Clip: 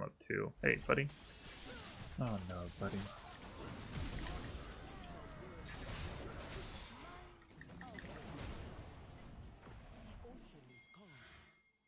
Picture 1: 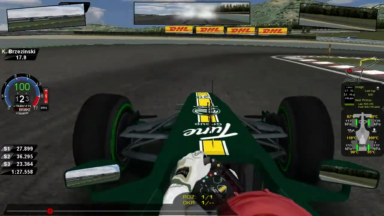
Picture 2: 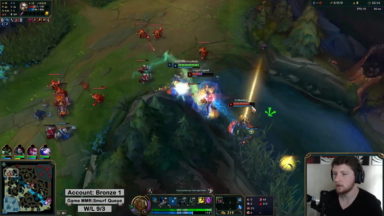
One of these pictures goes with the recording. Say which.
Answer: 2